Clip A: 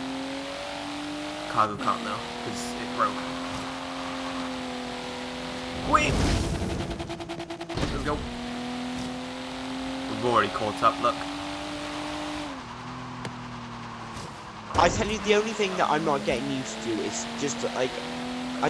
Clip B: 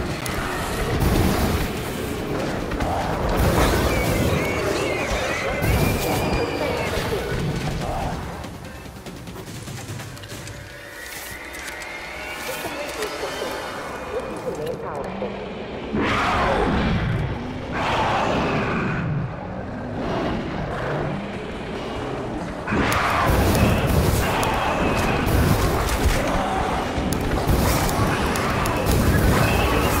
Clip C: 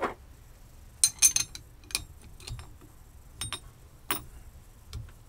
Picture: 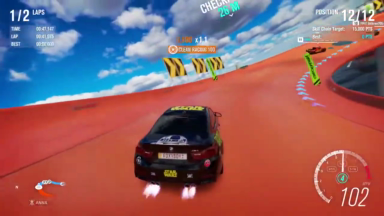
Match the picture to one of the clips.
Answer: A